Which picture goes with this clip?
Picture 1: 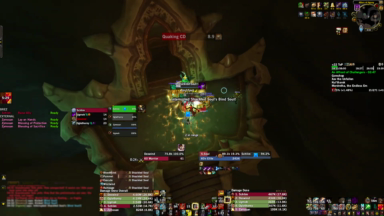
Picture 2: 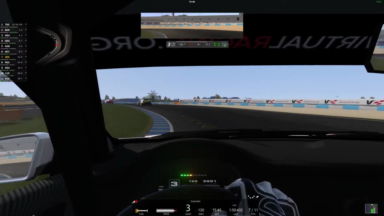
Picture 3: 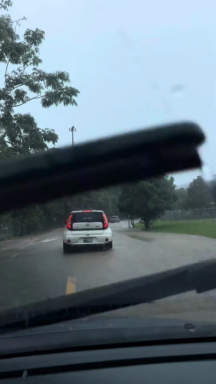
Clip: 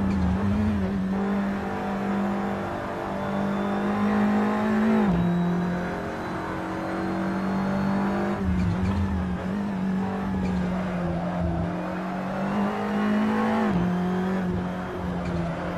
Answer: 2